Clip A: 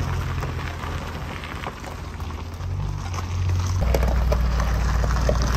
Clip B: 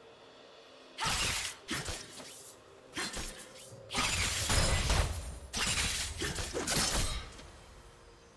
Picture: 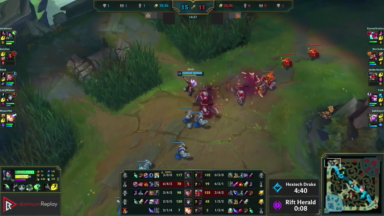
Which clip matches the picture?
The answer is B